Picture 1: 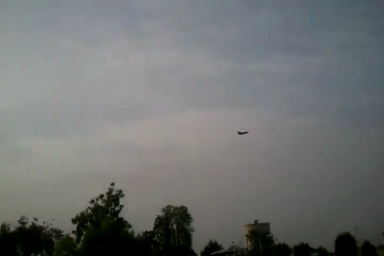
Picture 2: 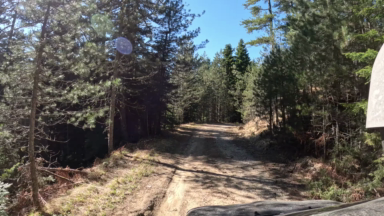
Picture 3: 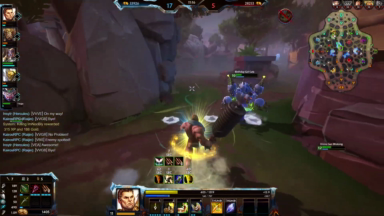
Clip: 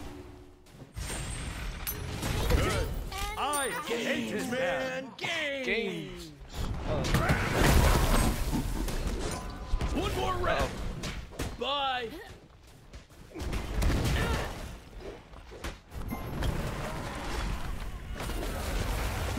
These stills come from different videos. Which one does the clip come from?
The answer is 3